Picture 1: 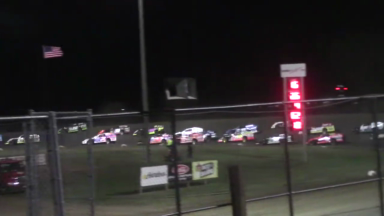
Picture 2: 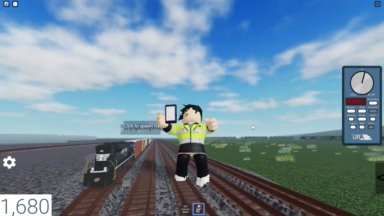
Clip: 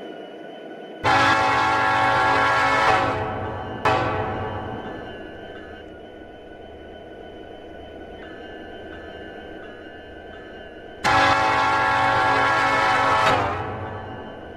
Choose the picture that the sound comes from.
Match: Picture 2